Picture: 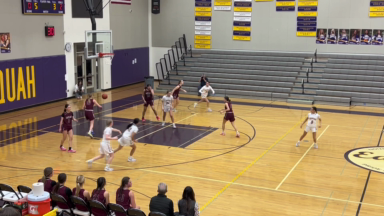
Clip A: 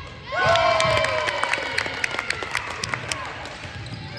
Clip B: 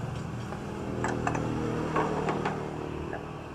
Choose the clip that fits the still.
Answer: A